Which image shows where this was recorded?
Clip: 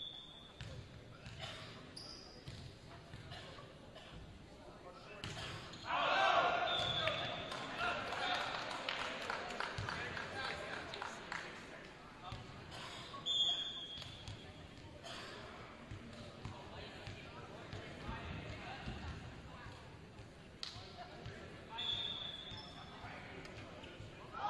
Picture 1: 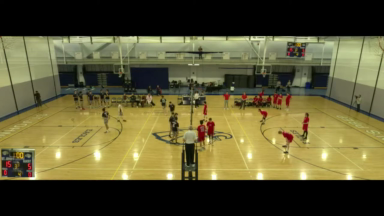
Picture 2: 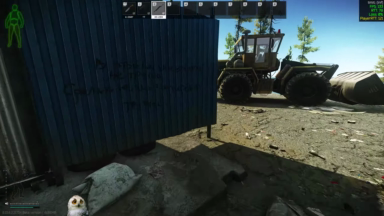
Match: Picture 1